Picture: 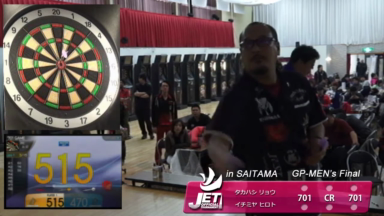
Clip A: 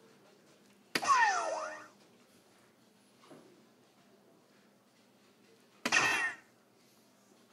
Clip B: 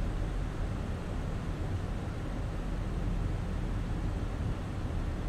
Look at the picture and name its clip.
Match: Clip A